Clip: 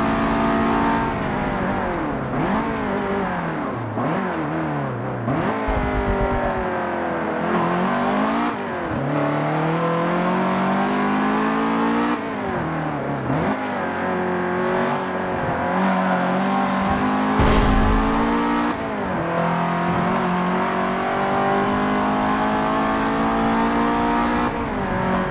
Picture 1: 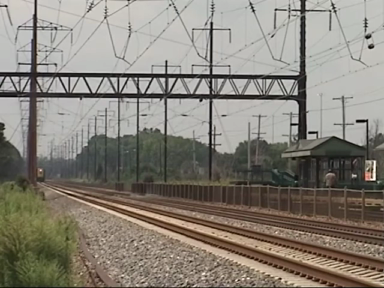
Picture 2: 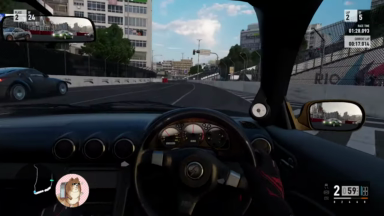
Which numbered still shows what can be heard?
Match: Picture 2